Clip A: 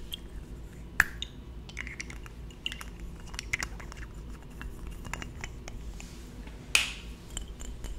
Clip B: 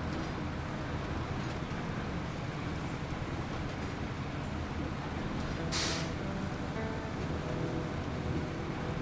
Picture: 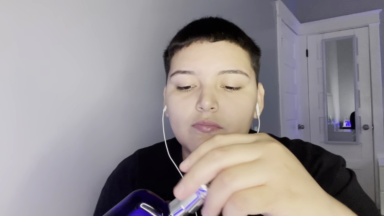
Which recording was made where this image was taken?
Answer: A